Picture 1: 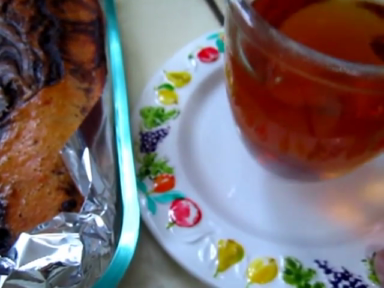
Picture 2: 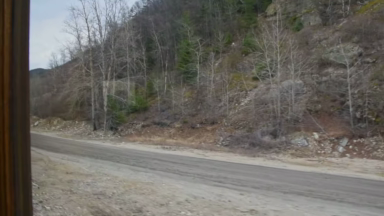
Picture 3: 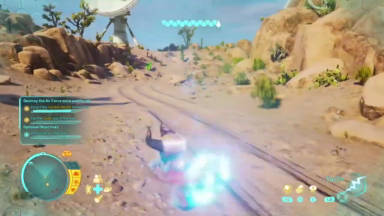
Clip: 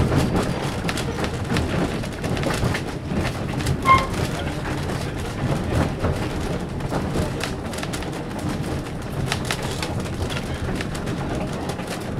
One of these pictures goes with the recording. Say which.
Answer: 2